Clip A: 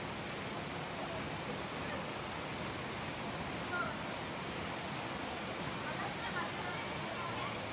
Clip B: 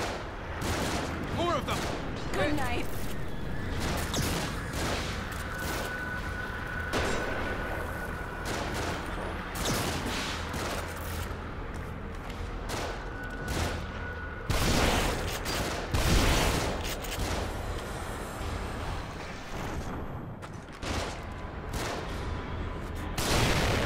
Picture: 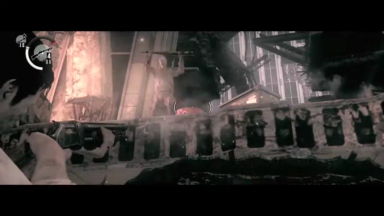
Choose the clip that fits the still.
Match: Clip B